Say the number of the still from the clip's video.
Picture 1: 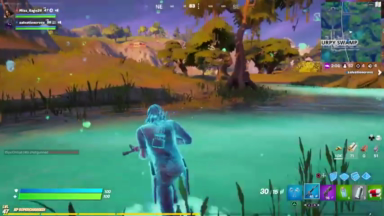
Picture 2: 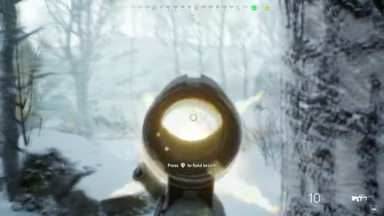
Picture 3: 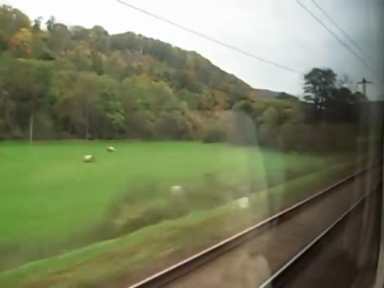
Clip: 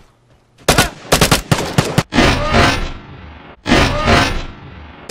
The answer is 2